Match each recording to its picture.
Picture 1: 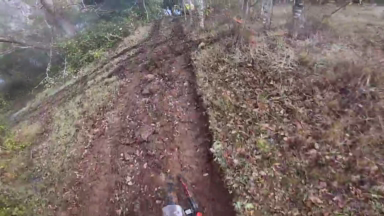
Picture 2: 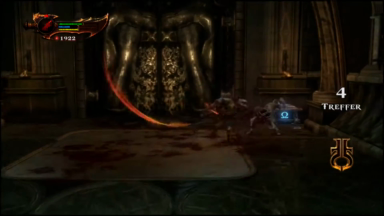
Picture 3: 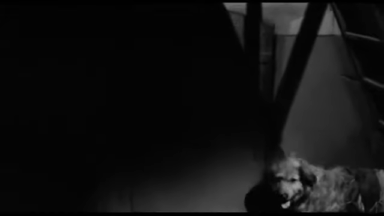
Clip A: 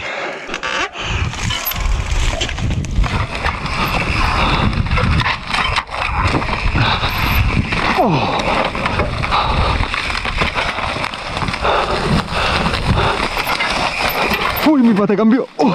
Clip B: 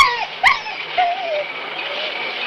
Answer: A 1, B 3